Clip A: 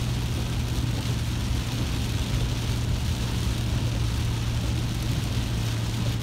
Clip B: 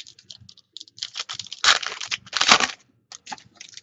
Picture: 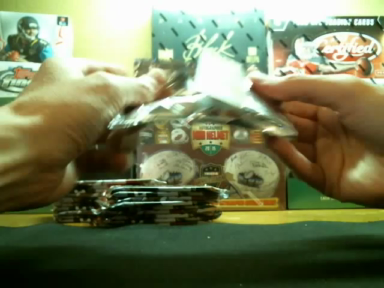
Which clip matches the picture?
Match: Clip B